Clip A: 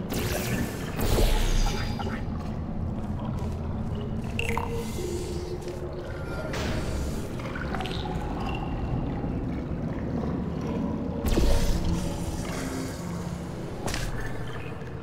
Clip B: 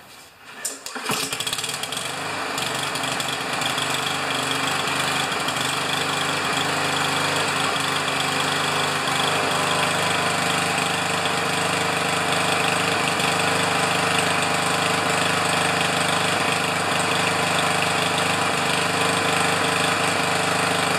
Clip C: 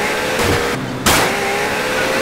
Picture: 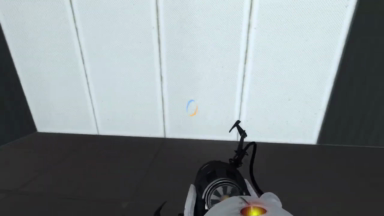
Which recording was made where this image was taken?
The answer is A